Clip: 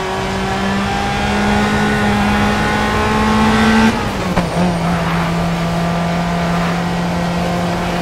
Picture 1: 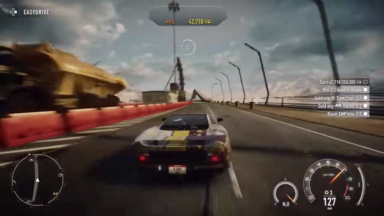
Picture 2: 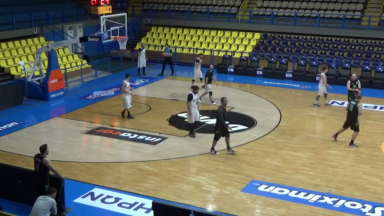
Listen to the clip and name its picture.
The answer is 1